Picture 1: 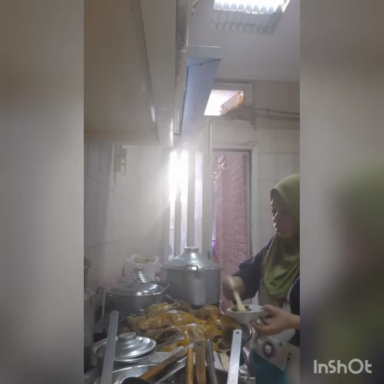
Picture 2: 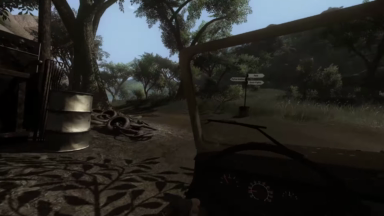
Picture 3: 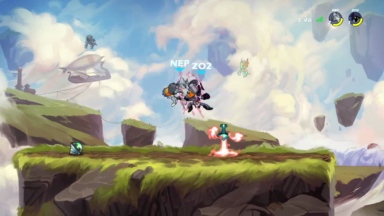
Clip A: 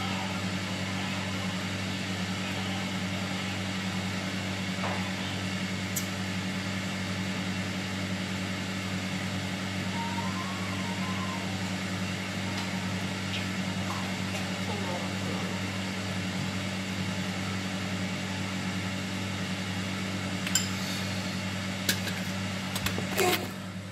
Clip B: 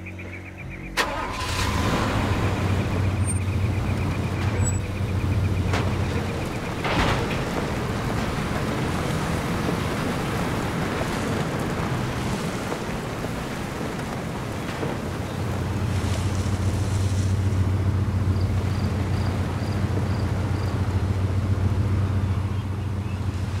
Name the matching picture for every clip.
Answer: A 1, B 2